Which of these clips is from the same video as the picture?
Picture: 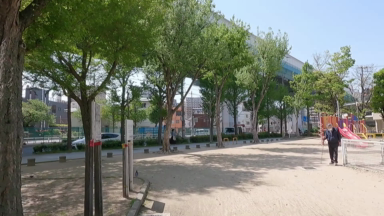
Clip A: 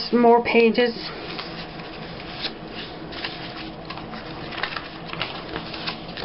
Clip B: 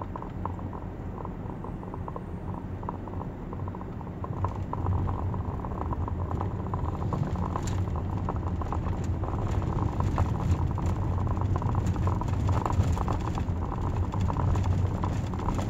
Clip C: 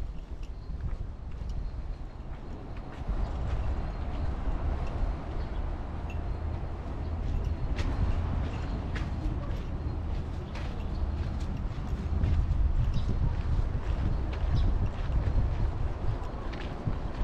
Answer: C